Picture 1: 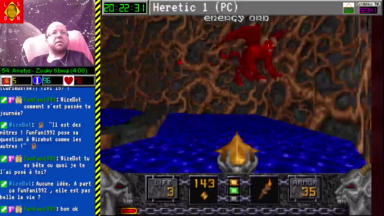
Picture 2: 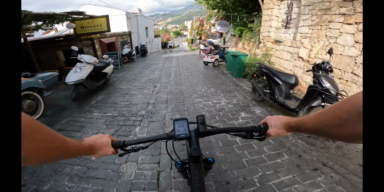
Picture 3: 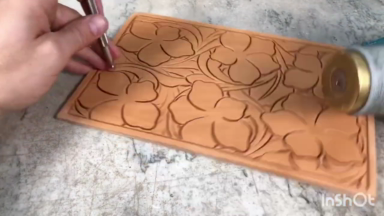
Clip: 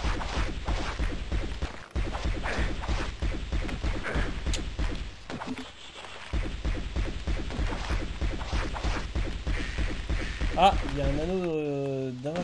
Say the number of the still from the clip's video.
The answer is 1